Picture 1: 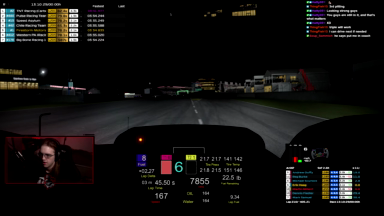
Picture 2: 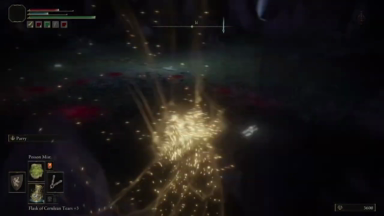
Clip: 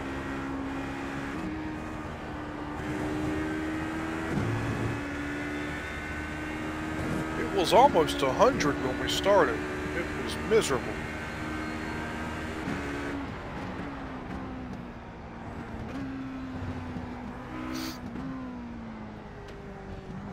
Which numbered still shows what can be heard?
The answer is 1